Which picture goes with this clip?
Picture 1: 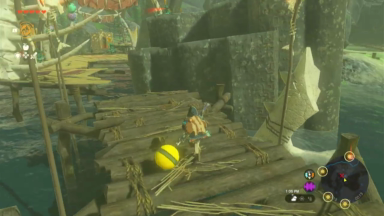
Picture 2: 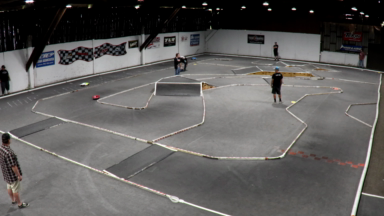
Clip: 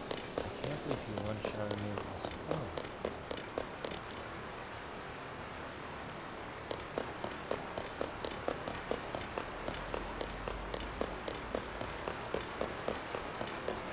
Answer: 1